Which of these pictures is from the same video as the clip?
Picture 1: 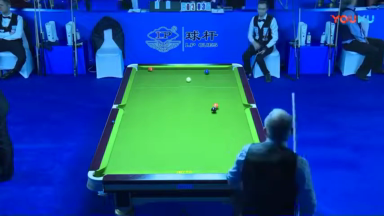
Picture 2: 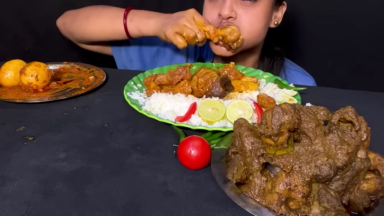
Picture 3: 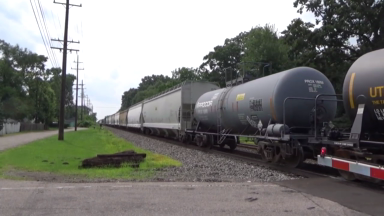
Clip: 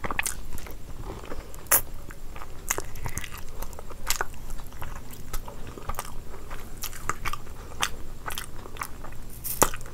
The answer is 2